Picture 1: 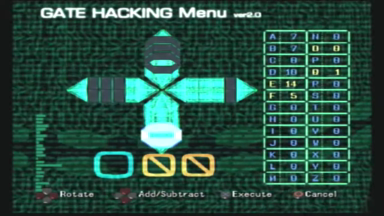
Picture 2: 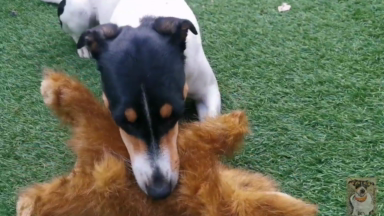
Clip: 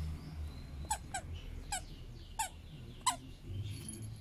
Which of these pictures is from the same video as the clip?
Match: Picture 2